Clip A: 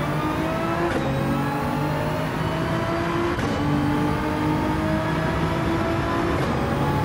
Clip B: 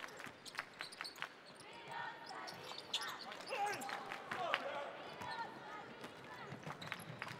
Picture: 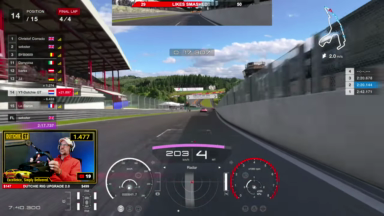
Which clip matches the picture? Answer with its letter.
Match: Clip A